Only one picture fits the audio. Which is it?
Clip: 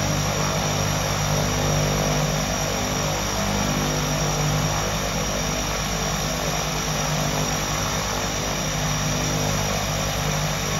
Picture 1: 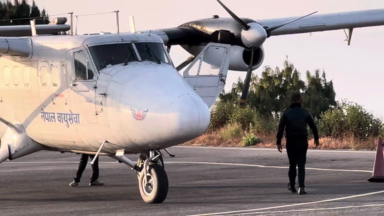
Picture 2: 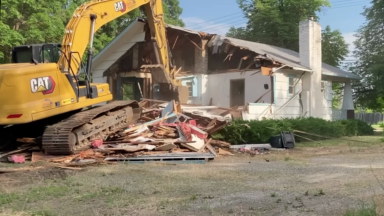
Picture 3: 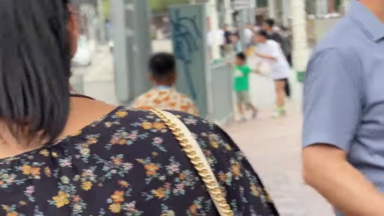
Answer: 1